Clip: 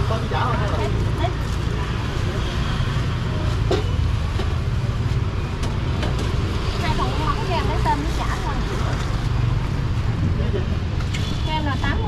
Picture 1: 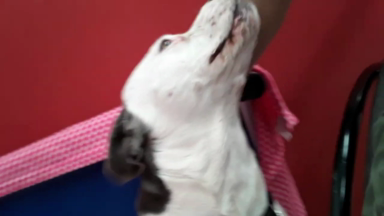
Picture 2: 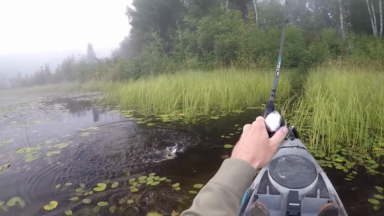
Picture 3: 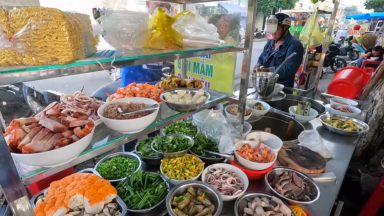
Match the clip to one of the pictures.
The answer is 3